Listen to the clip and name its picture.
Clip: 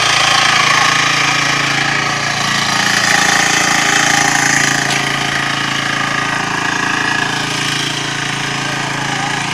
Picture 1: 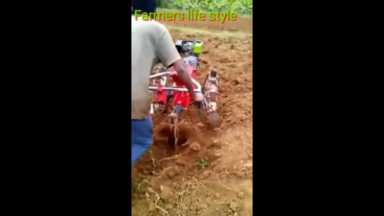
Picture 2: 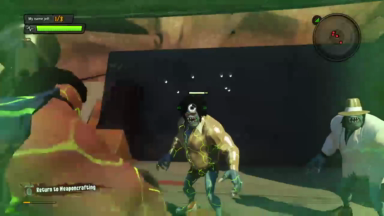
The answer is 1